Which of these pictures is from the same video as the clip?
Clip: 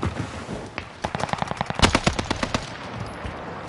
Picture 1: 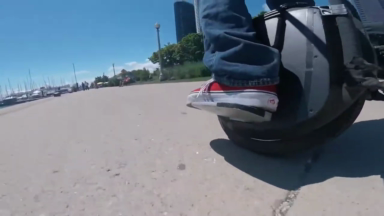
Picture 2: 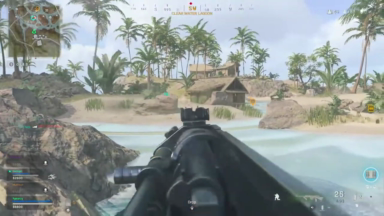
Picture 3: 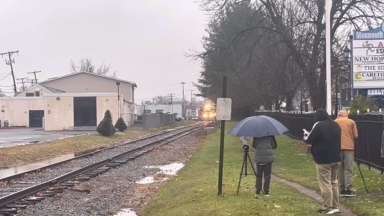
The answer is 2